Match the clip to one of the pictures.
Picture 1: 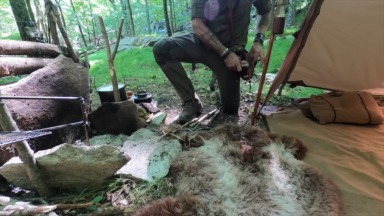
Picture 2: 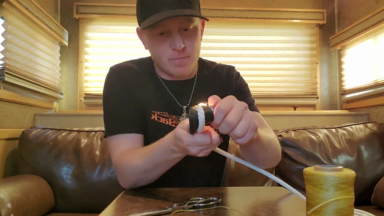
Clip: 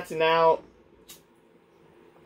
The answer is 2